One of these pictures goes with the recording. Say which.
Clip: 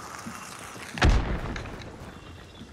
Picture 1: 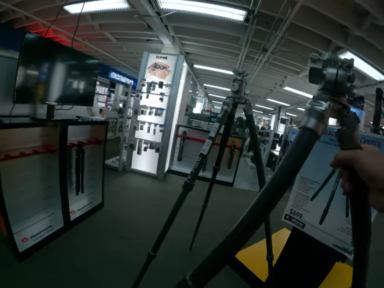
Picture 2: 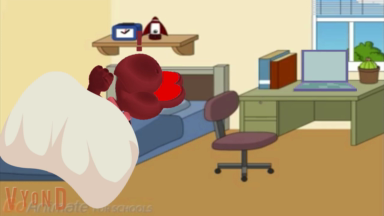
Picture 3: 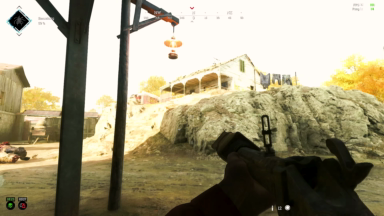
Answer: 3